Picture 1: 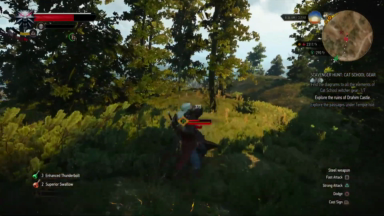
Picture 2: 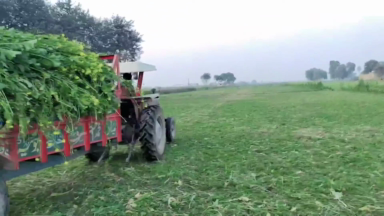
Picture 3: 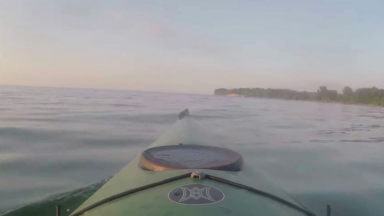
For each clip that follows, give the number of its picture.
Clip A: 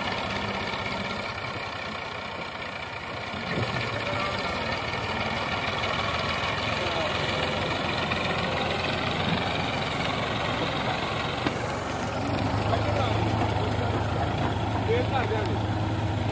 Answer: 2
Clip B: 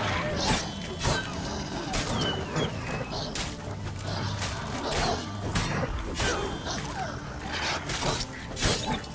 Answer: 1